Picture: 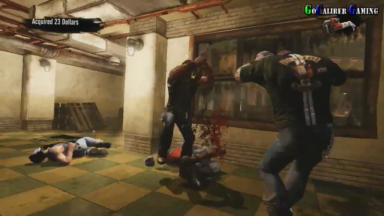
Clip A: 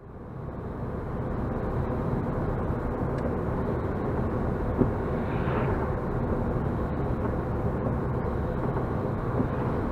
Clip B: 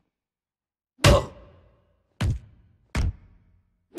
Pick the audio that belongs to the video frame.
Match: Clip B